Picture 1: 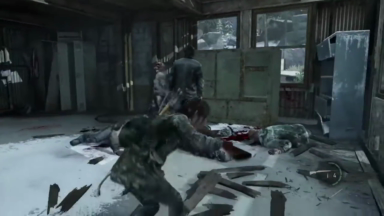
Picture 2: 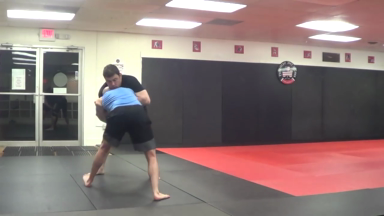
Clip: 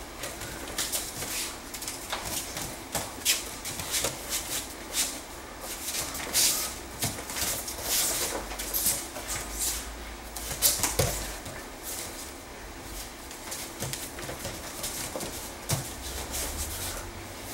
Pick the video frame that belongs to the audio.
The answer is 2